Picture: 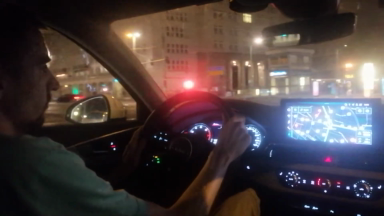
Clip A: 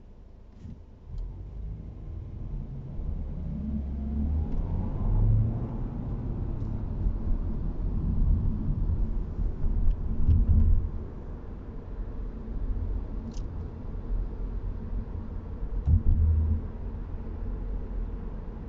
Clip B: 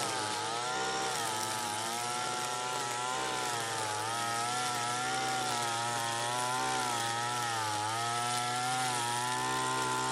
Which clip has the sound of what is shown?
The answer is A